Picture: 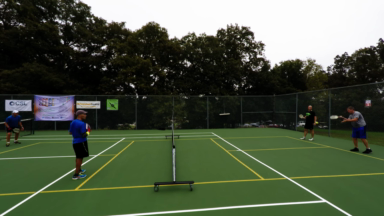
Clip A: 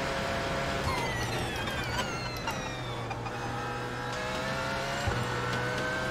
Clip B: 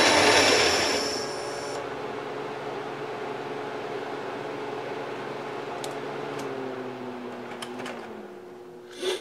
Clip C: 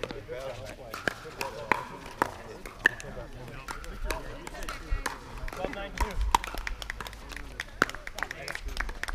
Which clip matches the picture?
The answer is C